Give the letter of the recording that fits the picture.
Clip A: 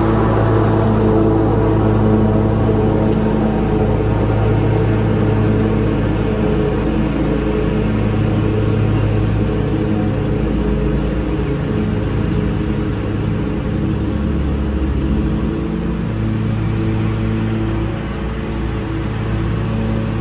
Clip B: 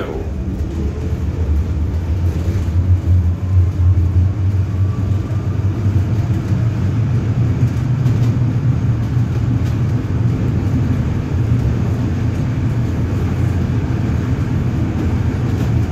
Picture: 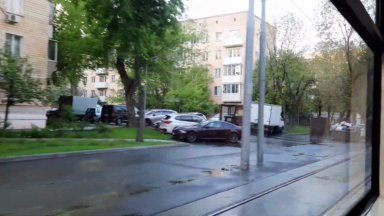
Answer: B